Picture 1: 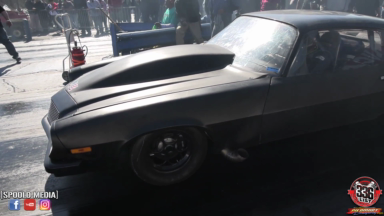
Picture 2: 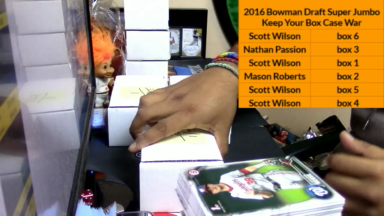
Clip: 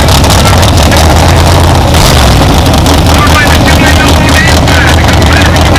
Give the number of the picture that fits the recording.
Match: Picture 1